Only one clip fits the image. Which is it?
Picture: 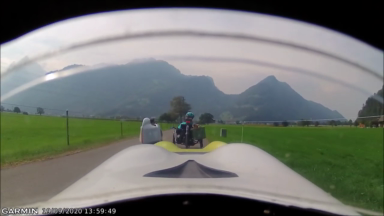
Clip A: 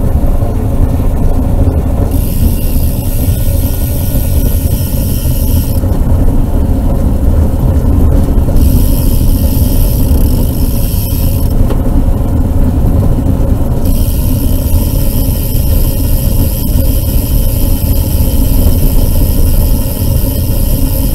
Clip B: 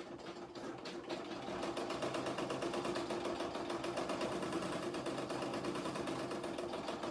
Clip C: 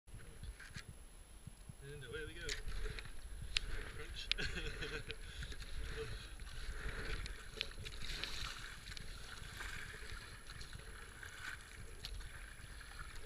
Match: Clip A